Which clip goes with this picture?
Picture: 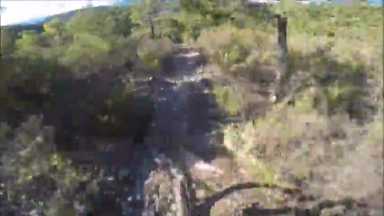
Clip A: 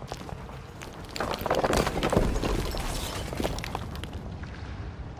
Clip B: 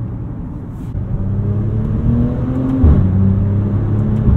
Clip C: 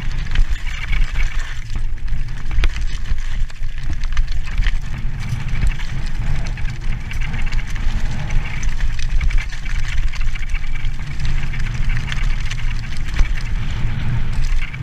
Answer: C